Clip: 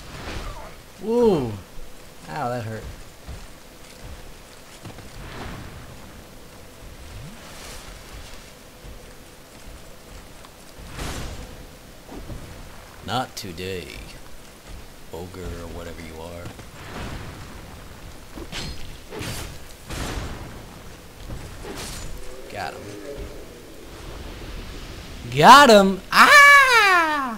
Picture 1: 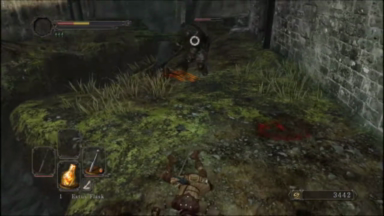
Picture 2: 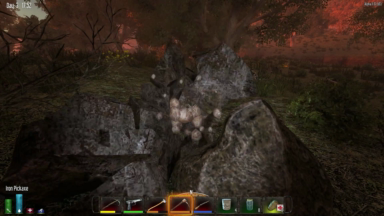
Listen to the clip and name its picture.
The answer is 1